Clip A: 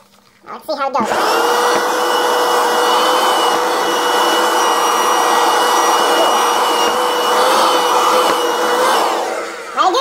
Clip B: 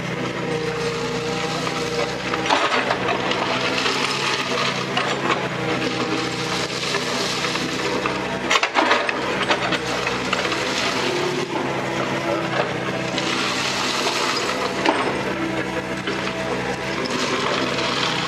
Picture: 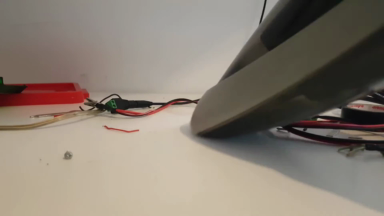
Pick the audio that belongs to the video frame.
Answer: A